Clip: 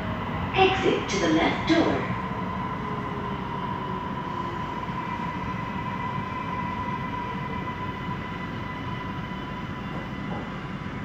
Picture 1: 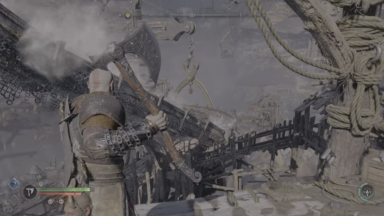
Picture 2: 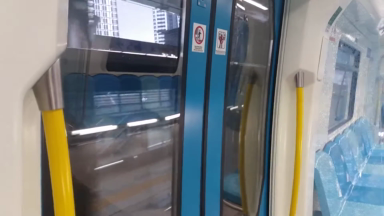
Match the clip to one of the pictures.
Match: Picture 2